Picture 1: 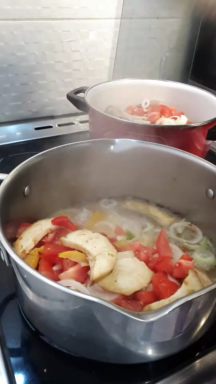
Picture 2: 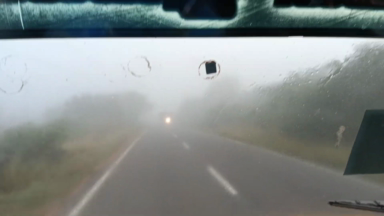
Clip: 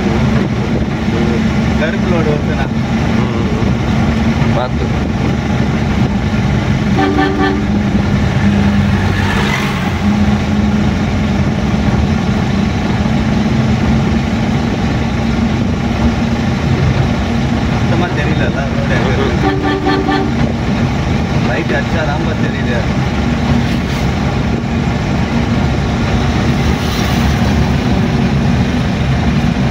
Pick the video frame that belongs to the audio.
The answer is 2